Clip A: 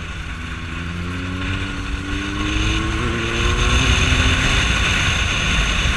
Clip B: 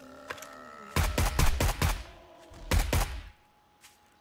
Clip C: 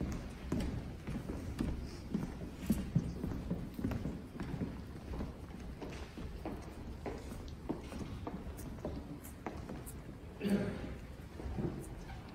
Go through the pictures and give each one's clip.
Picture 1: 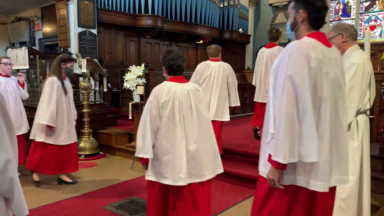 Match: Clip C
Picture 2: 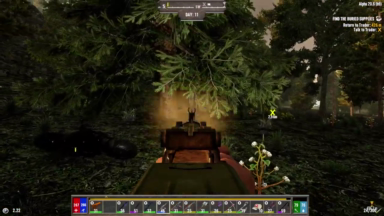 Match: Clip B